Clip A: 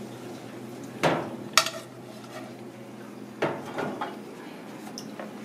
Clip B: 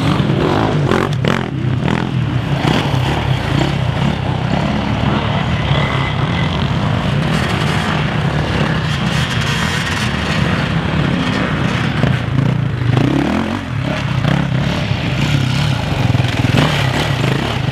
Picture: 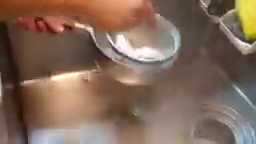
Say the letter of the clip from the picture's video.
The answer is A